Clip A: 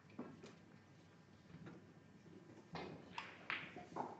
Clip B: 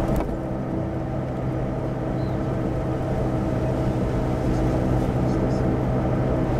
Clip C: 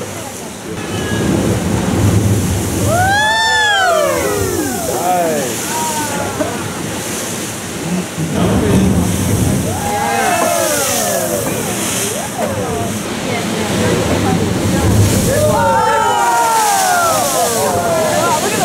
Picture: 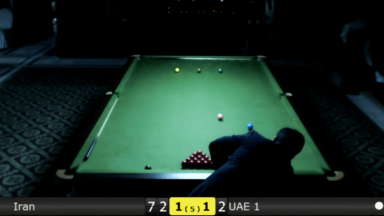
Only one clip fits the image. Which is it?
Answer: A